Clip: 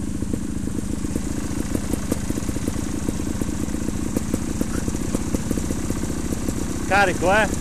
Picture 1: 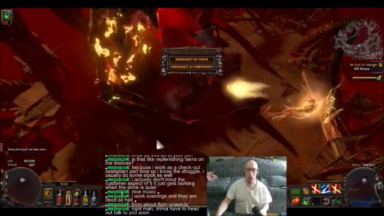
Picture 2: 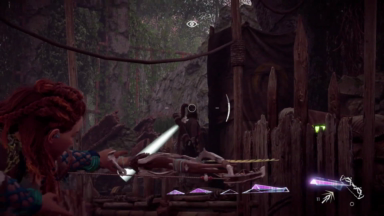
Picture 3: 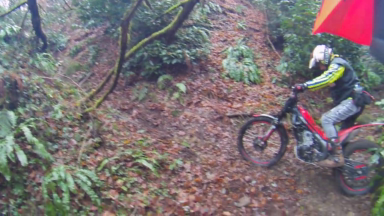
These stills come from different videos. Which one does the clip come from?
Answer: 3